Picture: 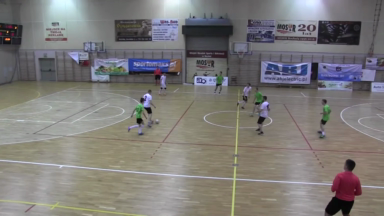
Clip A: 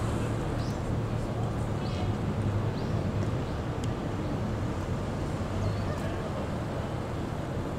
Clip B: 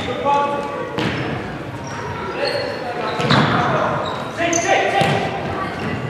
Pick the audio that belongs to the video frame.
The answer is B